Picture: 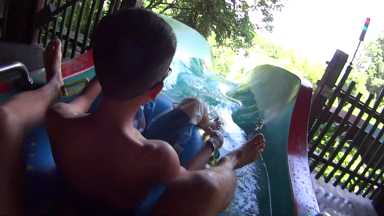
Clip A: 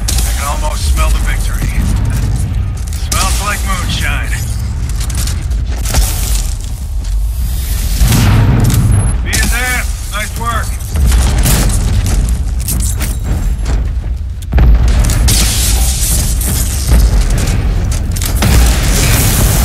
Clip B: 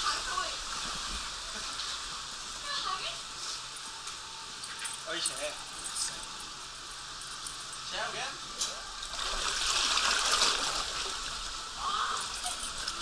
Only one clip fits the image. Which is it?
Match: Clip B